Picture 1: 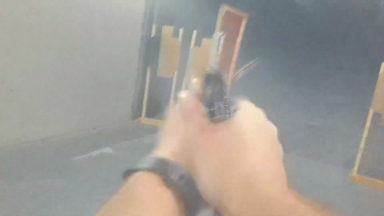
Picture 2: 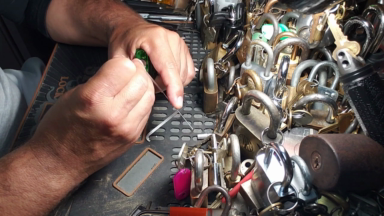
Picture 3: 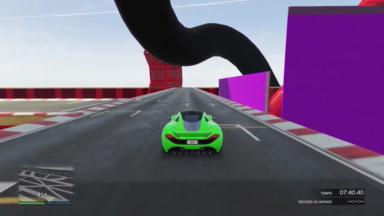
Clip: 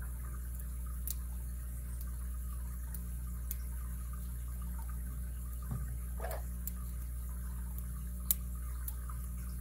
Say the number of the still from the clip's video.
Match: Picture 2